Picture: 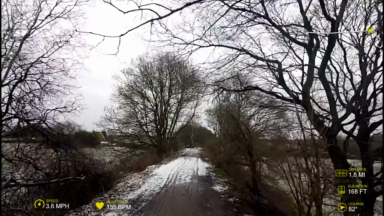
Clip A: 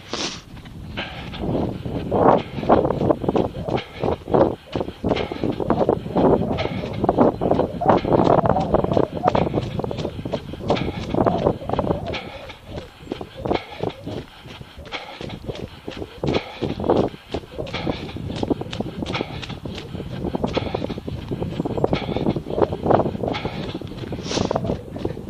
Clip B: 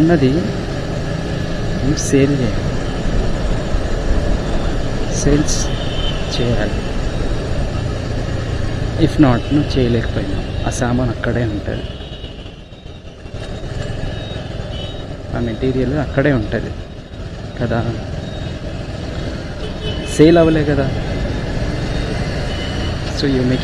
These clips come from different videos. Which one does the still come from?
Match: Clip A